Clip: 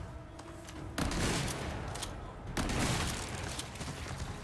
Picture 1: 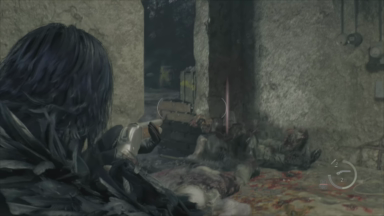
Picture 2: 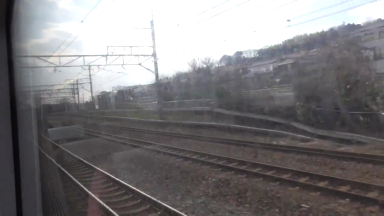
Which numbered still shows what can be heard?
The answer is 1